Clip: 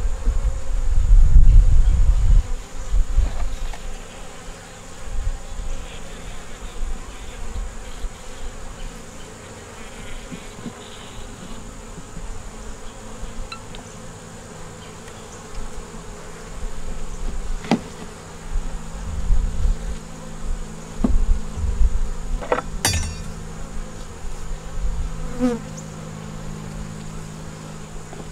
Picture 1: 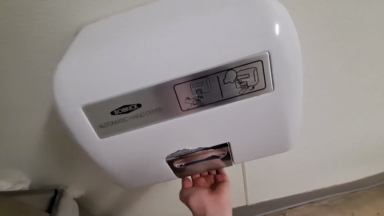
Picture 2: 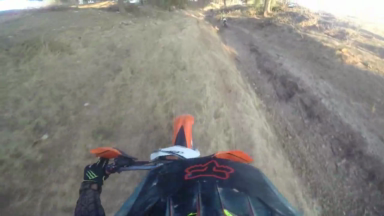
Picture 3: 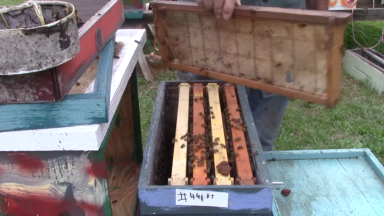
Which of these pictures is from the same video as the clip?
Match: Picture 3